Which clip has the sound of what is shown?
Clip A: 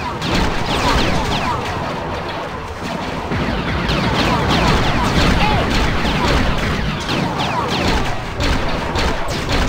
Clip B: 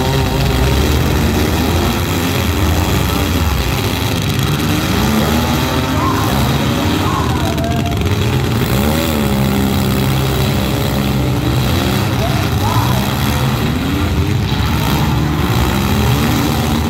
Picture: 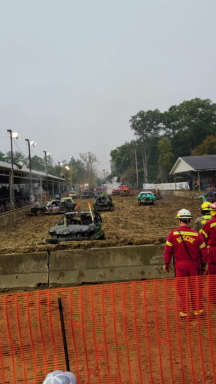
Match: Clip B